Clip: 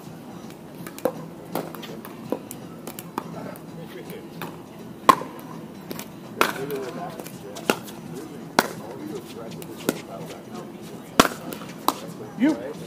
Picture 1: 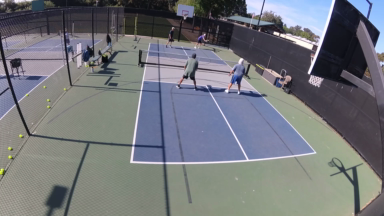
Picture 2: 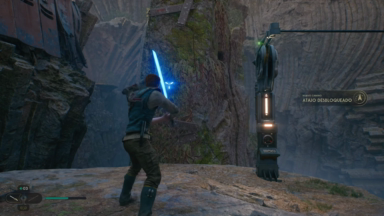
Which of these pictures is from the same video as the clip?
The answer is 1